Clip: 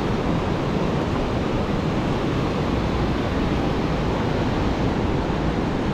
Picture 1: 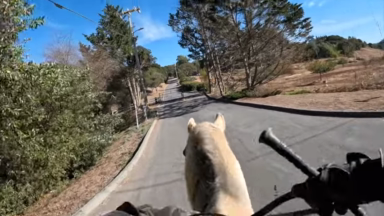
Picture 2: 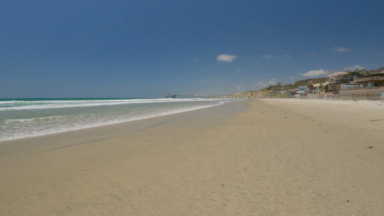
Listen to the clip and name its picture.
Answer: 2